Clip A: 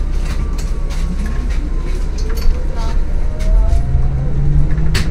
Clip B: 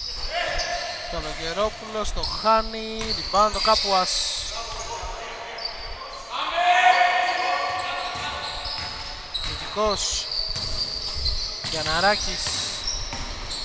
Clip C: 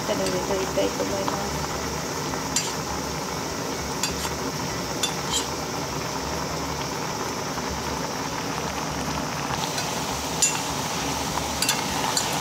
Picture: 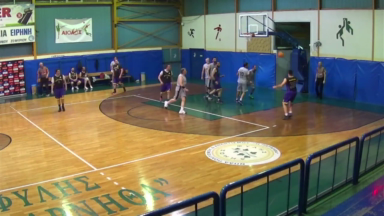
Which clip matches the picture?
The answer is B